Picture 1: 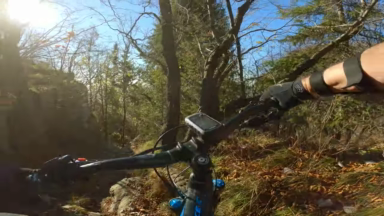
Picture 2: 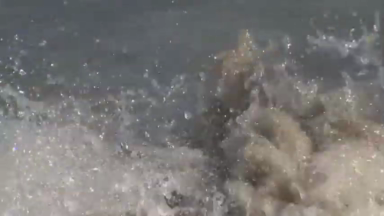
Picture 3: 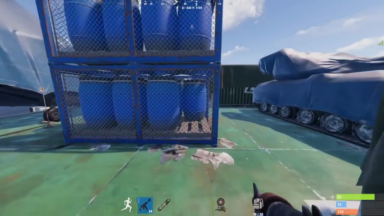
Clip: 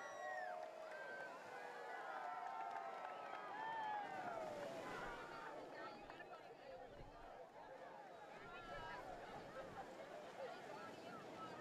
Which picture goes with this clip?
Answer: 2